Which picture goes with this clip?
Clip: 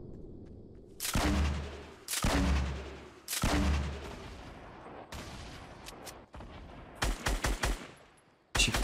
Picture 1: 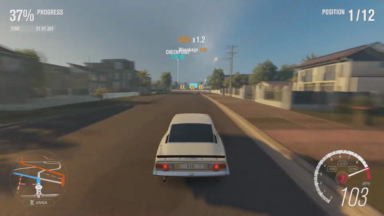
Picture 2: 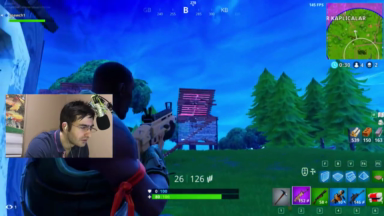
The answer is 2